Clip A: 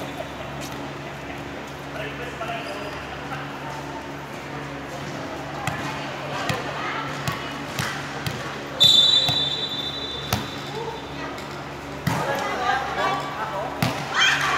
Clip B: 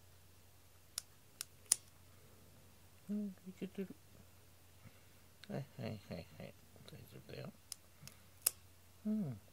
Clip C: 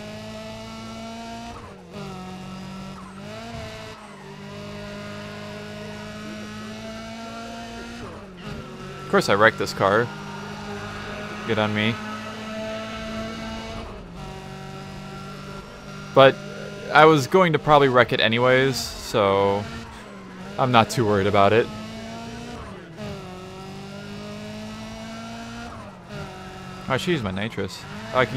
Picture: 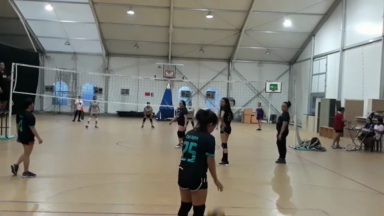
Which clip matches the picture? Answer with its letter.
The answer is A